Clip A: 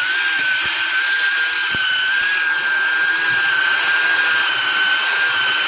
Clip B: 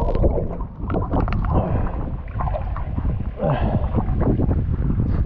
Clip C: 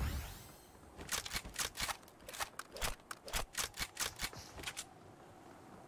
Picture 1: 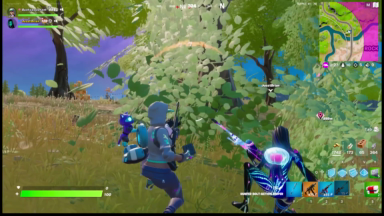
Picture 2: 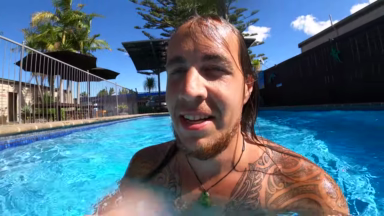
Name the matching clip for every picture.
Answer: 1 C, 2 B